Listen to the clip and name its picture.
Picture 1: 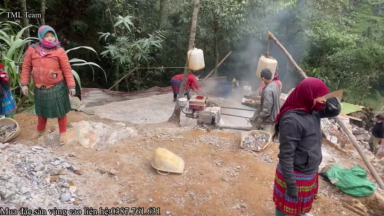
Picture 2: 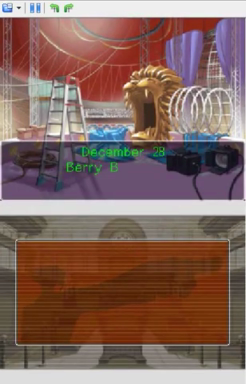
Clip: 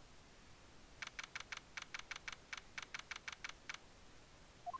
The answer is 2